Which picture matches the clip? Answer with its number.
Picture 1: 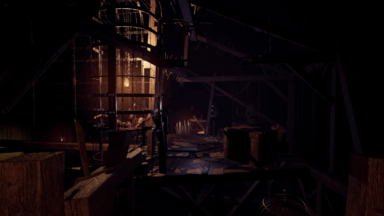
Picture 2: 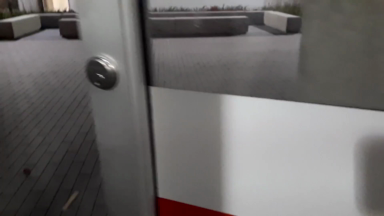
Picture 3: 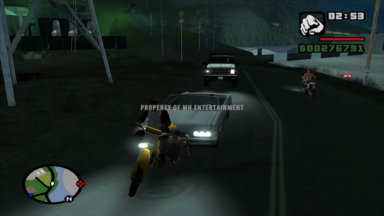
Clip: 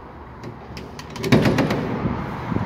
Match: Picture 2